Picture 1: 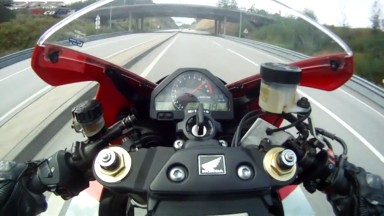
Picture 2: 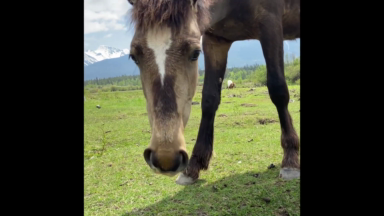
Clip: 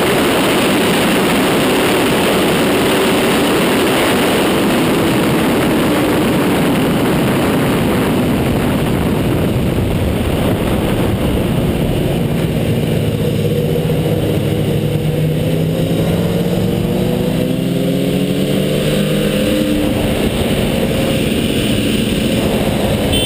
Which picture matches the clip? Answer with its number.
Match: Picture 1